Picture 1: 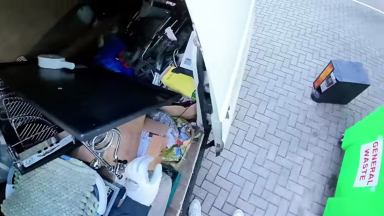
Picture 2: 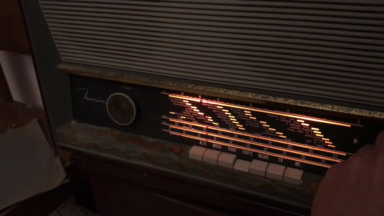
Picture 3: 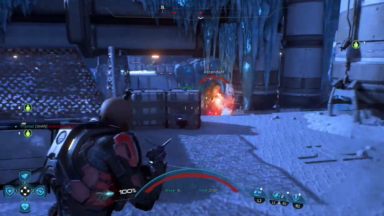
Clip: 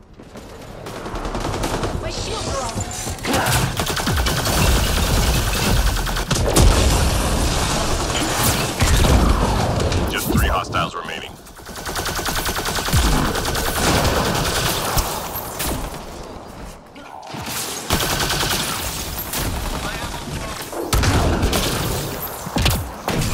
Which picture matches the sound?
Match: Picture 3